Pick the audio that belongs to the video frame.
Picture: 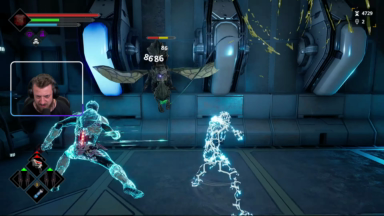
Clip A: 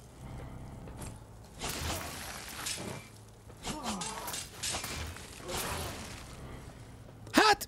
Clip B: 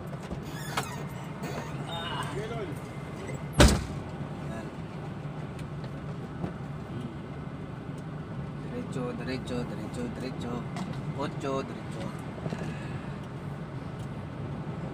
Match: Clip A